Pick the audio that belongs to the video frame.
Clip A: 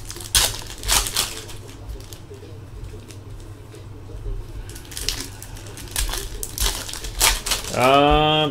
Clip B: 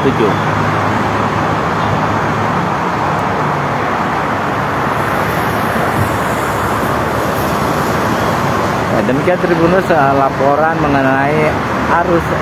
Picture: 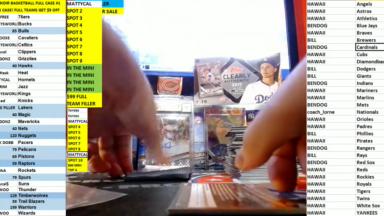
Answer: A